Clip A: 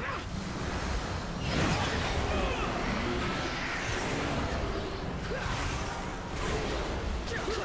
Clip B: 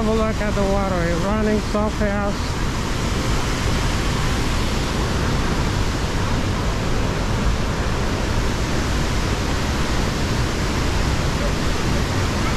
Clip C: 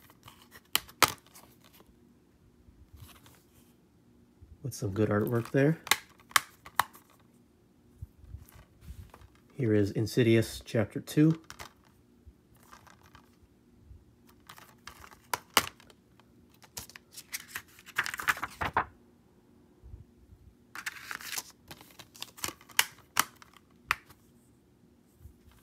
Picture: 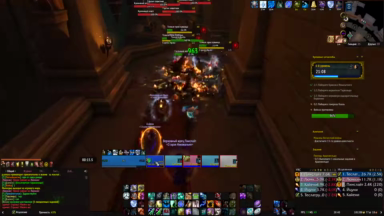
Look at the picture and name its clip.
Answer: A